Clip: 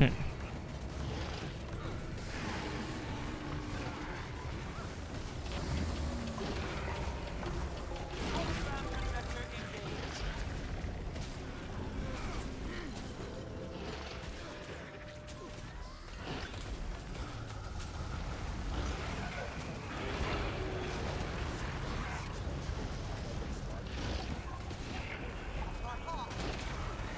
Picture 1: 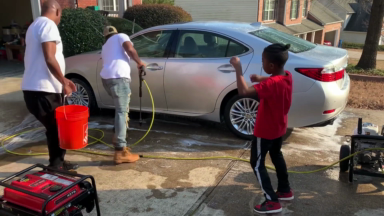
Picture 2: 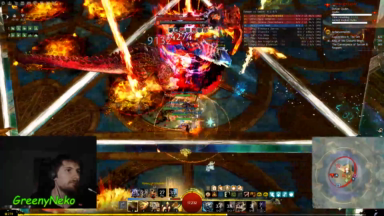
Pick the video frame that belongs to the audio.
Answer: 2